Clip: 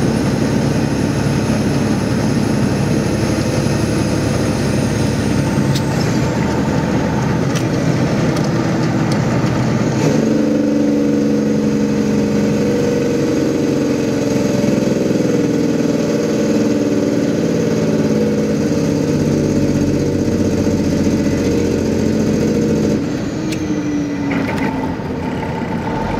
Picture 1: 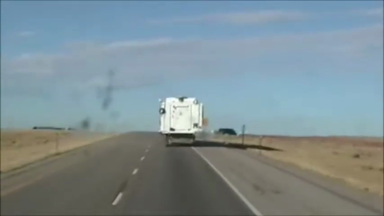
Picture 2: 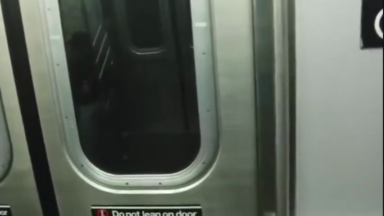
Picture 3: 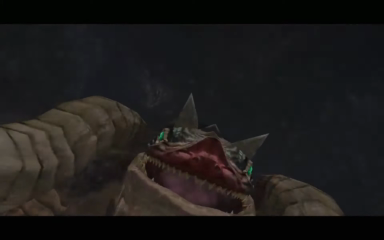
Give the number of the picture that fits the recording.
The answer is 1